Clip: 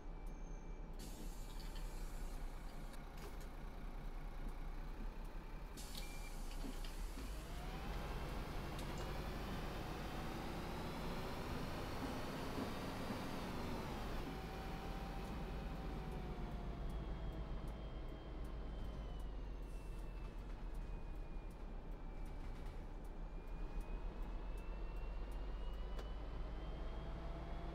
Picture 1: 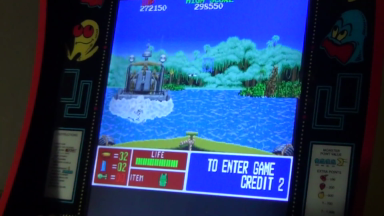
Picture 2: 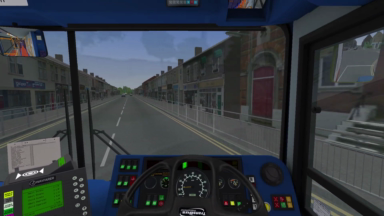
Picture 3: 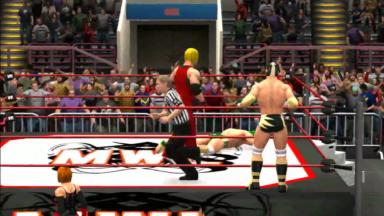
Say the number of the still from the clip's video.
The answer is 2